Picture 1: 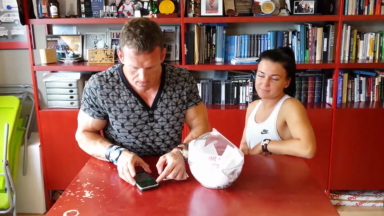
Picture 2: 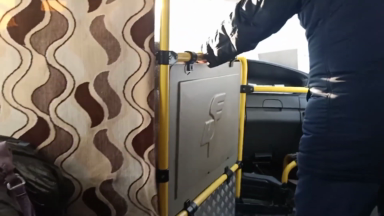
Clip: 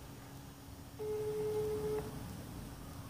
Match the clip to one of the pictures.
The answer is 1